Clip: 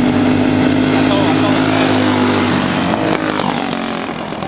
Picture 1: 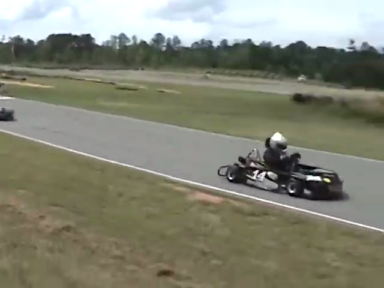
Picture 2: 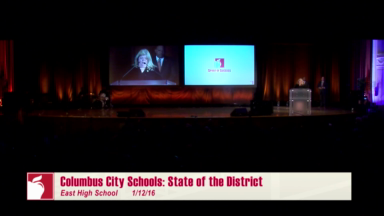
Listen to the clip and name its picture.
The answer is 1